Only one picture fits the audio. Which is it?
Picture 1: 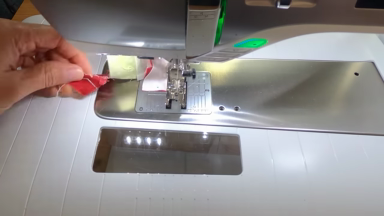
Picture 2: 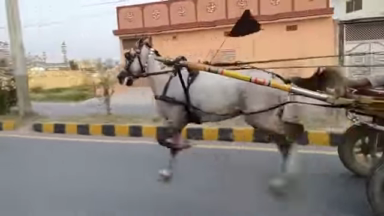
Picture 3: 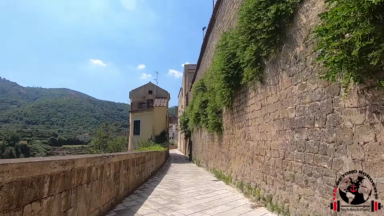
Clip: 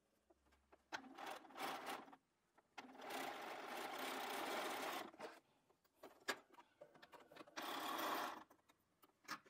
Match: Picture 1